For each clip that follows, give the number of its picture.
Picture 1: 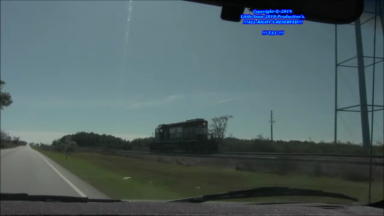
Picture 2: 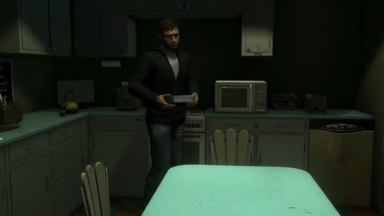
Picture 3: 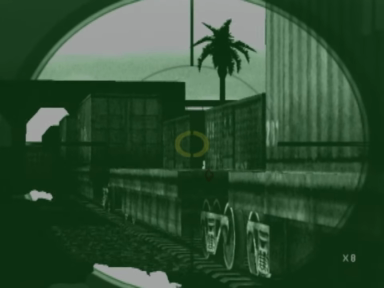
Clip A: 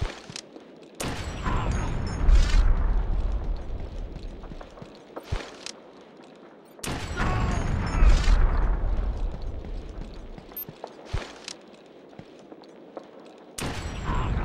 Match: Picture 3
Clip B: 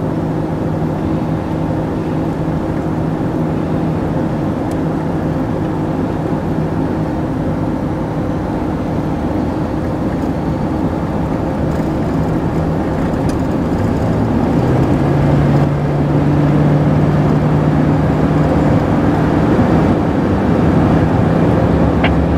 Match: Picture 1